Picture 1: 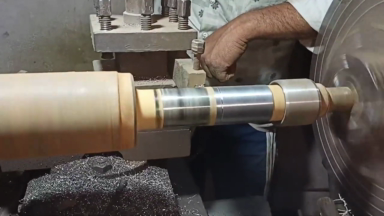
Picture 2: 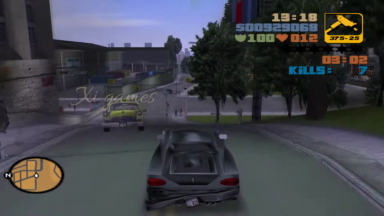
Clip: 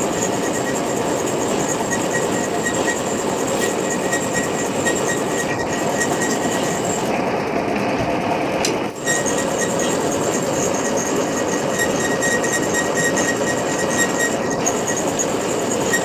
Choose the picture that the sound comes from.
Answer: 1